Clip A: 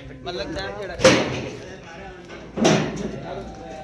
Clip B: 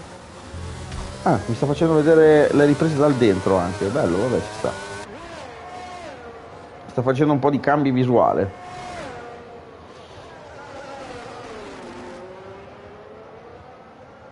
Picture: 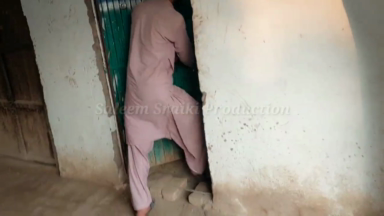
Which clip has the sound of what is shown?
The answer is A